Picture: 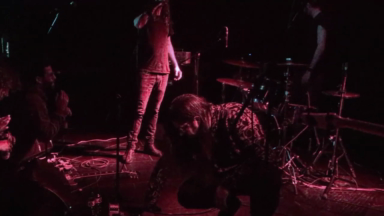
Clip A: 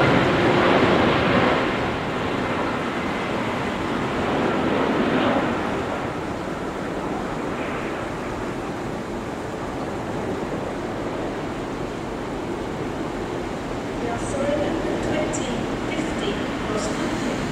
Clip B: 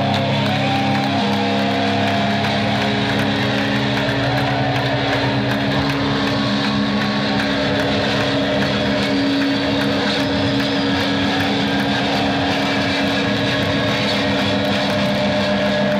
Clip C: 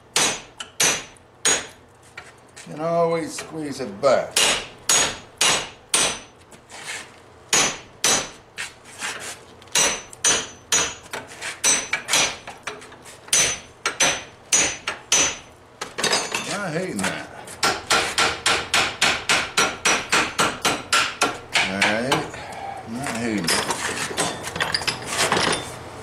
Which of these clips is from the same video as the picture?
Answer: B